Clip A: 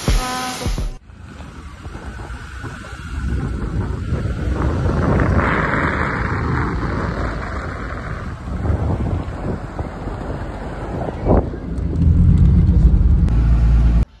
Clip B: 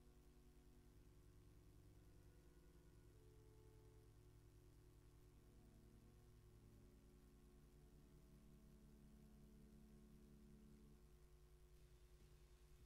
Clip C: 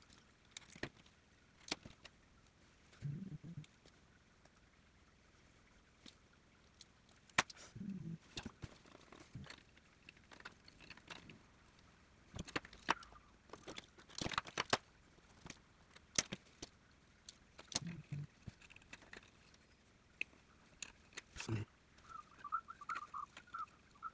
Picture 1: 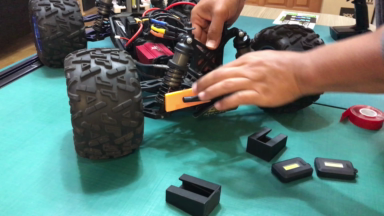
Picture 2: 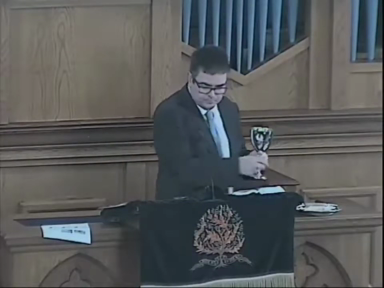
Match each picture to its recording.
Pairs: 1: C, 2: B